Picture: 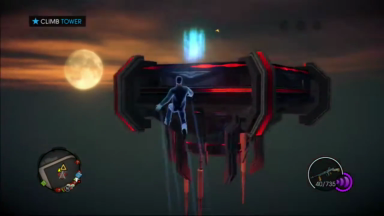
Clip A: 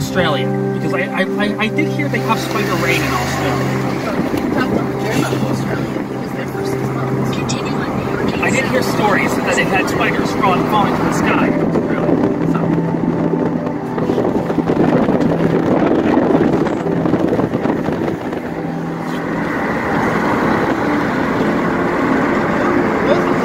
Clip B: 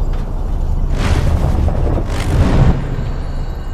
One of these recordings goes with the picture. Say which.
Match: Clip B